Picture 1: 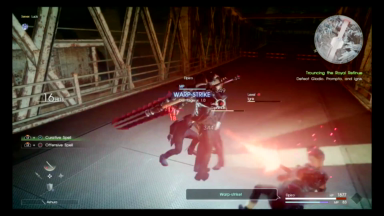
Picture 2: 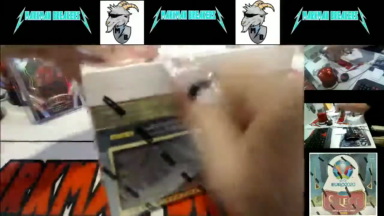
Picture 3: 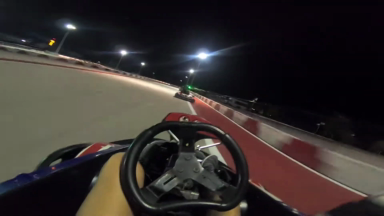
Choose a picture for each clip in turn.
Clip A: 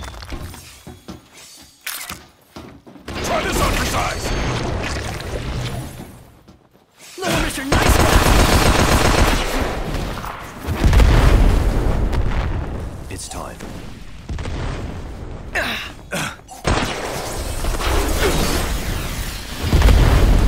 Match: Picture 1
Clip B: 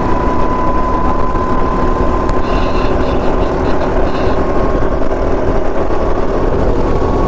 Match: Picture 3